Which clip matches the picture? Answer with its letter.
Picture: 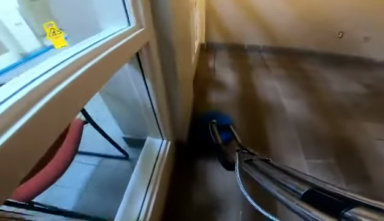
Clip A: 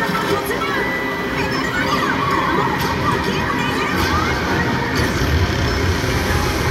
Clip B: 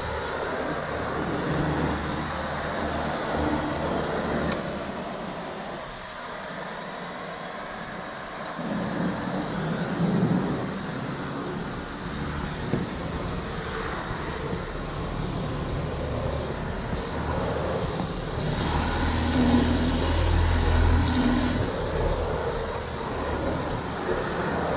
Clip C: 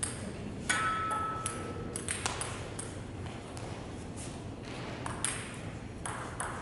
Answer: B